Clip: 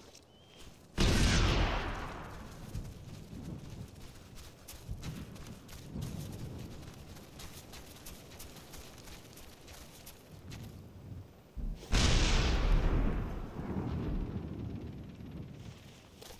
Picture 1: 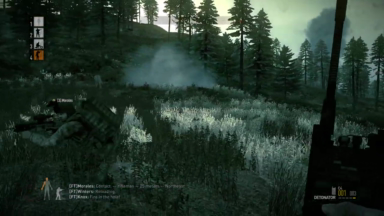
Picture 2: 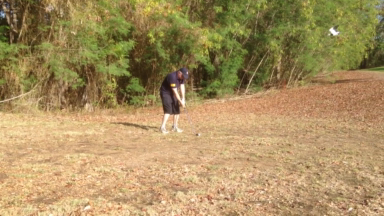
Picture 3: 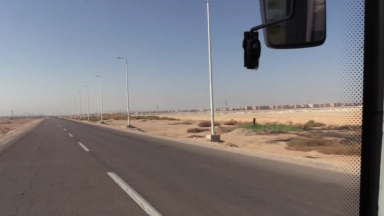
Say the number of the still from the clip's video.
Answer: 1